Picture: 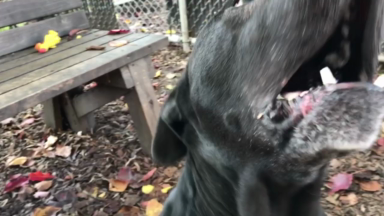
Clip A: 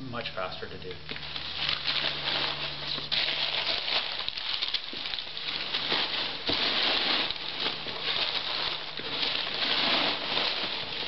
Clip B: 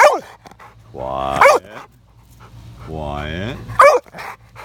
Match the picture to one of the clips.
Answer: B